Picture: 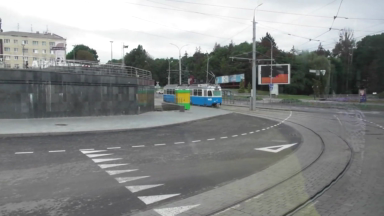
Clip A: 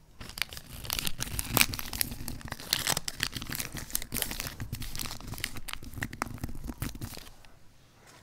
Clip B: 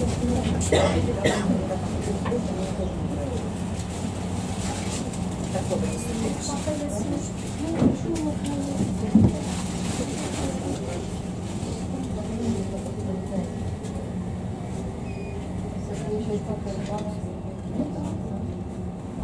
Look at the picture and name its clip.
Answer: B